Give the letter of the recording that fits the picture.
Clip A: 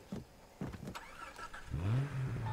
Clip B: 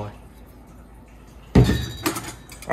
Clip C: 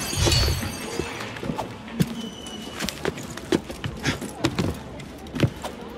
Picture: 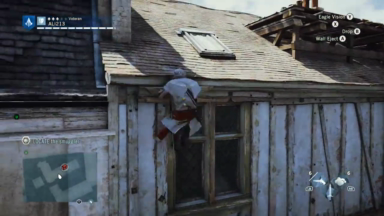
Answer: C